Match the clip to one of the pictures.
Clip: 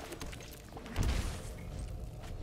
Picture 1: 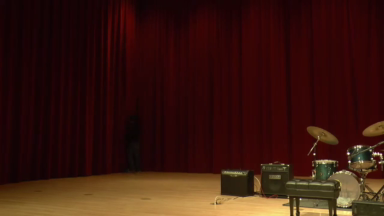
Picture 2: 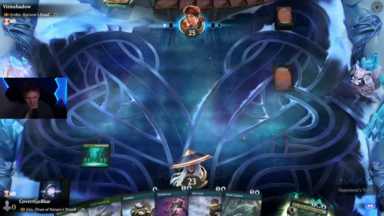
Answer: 2